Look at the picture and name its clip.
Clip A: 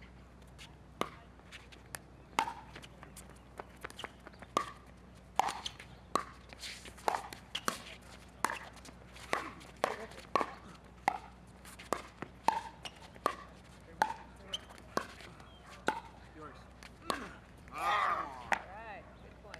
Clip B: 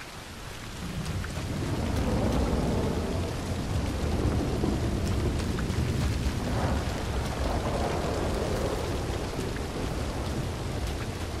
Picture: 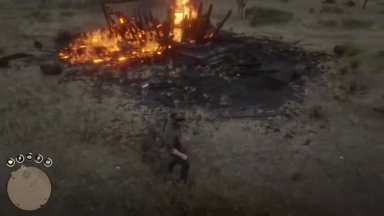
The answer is B